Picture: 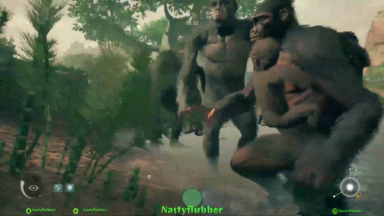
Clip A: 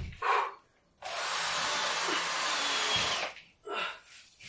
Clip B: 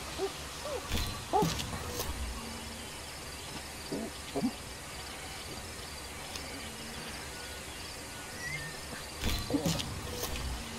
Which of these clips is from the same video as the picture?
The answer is B